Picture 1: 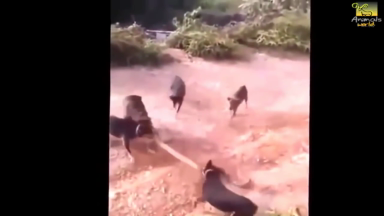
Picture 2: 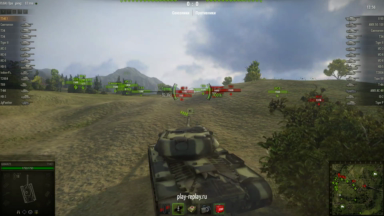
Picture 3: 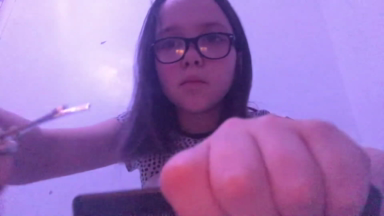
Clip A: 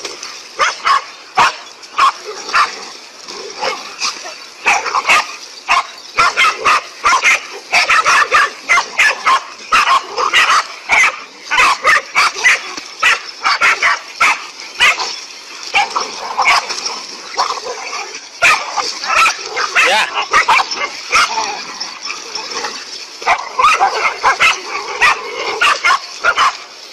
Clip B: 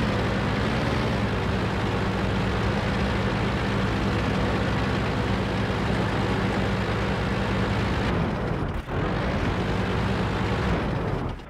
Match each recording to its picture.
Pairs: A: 1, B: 2